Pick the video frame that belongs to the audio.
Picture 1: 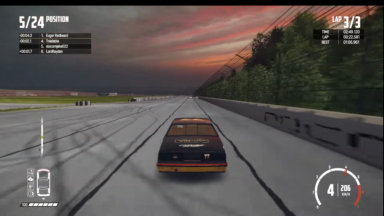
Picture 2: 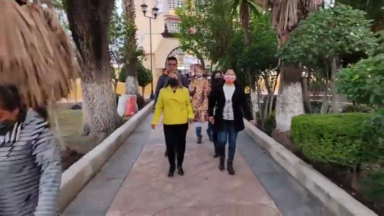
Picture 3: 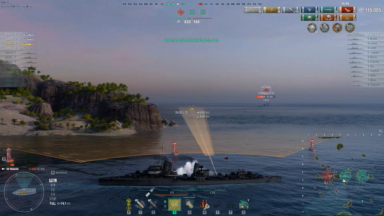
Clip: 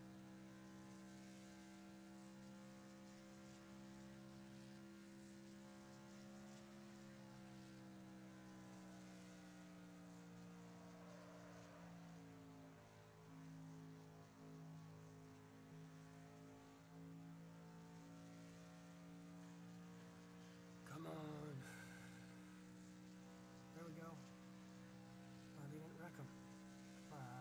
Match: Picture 1